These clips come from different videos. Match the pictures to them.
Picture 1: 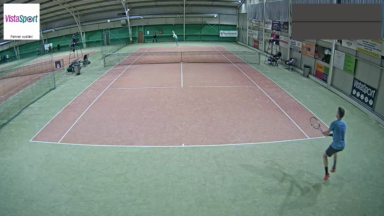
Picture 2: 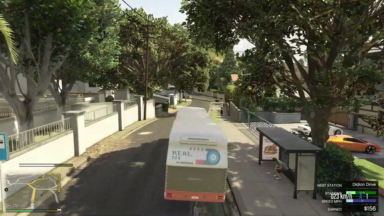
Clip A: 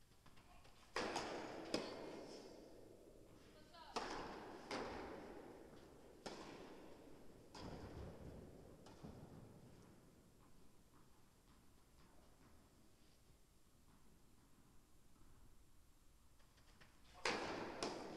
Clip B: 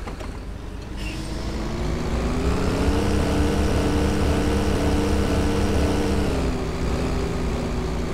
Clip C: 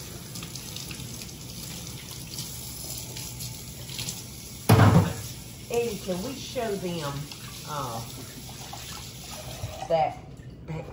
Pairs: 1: A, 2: B